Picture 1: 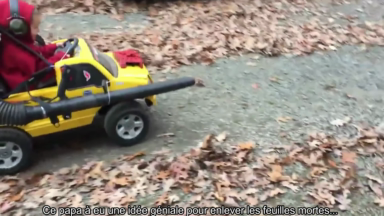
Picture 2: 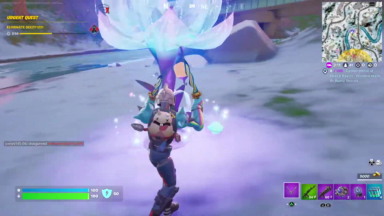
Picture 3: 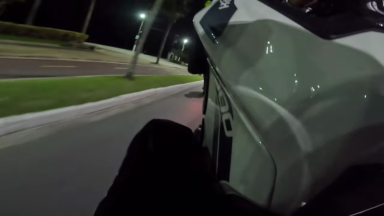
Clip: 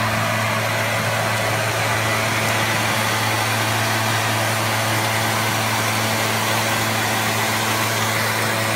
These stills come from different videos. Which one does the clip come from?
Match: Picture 1